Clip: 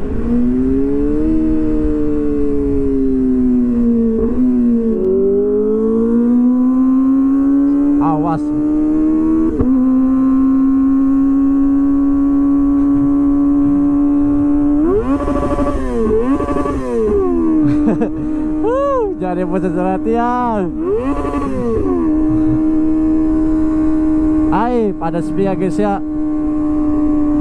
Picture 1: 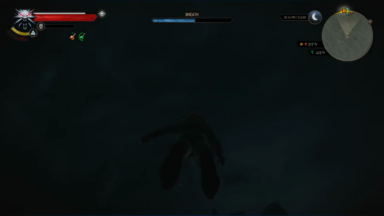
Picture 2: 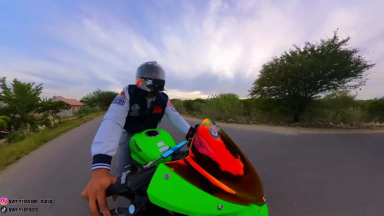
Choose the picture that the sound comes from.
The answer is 2